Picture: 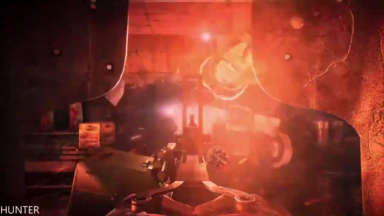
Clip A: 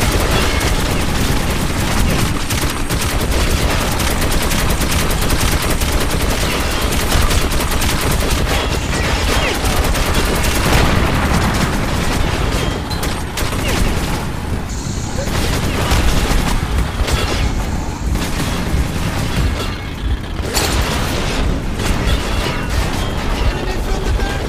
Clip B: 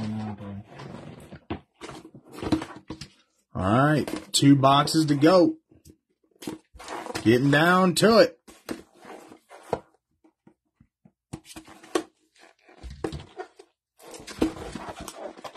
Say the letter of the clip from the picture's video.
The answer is A